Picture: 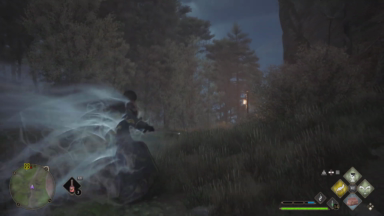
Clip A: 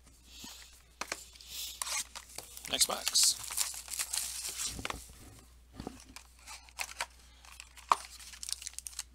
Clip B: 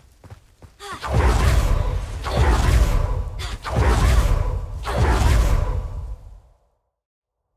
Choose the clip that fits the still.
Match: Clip B